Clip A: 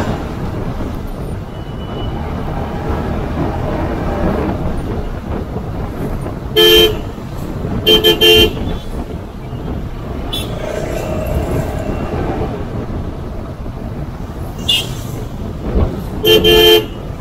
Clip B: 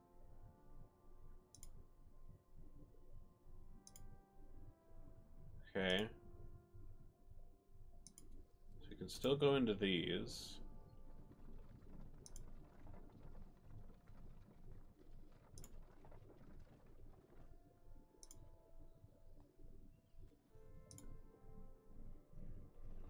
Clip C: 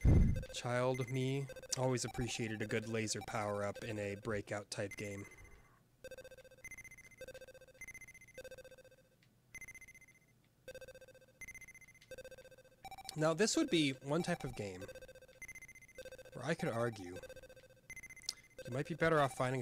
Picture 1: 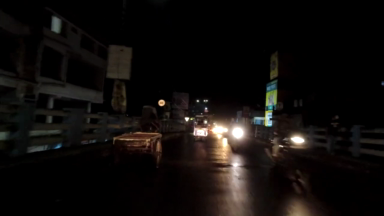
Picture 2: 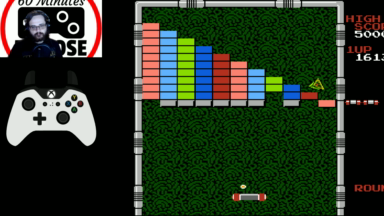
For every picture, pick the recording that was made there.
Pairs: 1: A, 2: C